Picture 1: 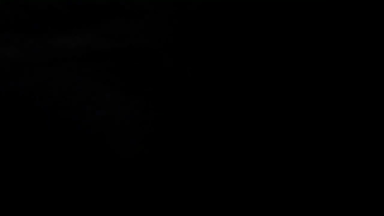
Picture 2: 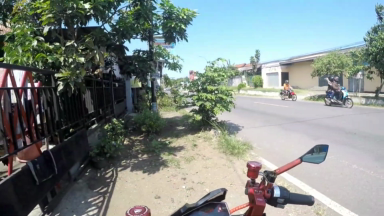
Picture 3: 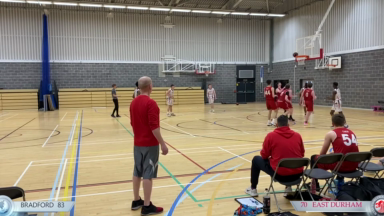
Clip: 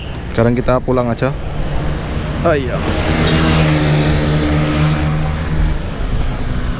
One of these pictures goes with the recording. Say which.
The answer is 2